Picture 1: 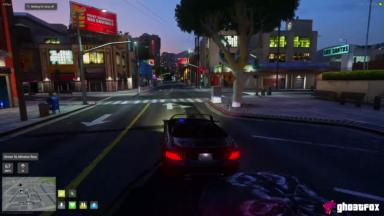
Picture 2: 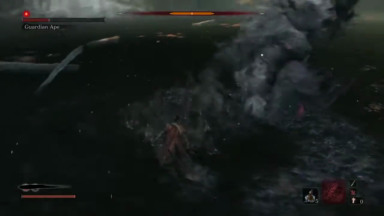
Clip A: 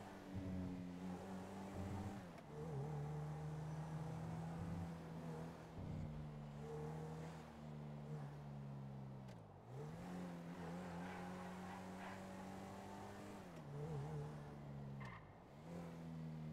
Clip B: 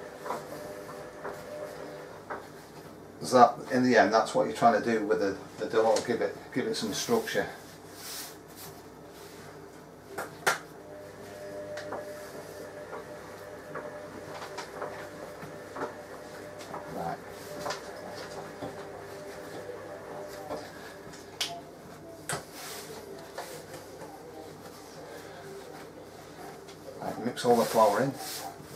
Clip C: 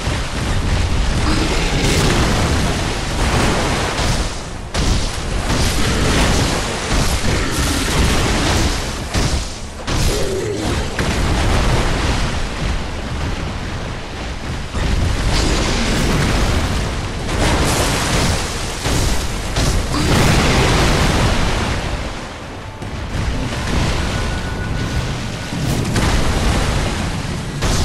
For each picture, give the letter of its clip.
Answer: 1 A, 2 C